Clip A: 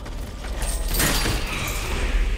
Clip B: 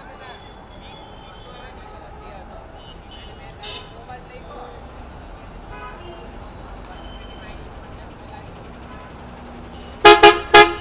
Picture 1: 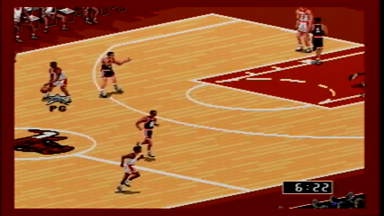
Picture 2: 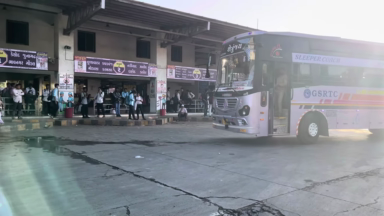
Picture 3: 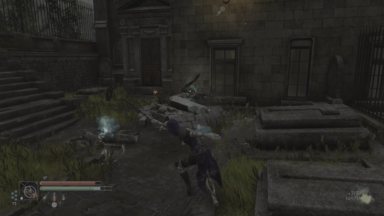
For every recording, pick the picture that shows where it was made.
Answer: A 3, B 2